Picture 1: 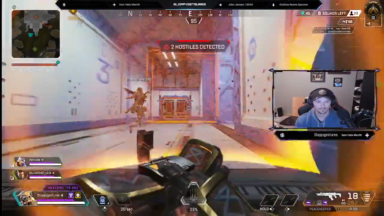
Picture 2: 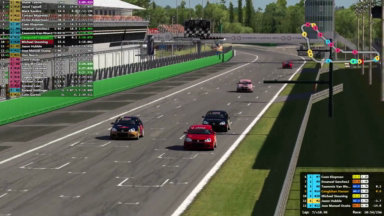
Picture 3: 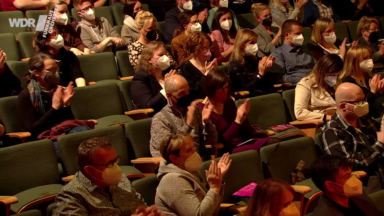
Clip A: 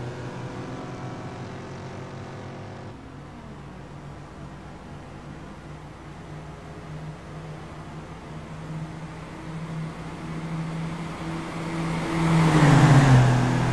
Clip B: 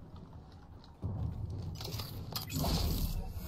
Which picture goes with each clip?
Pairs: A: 2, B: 1